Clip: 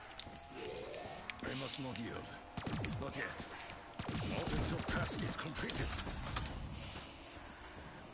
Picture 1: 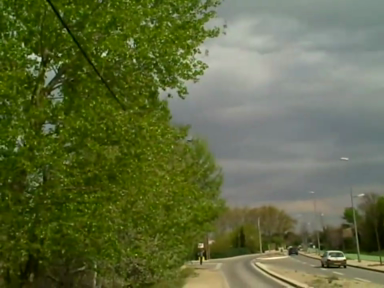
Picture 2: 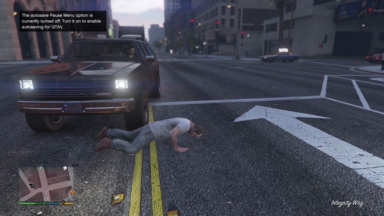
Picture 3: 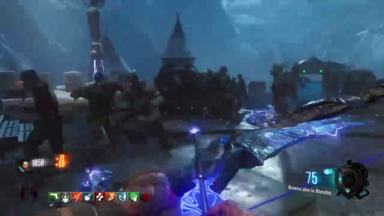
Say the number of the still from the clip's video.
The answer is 3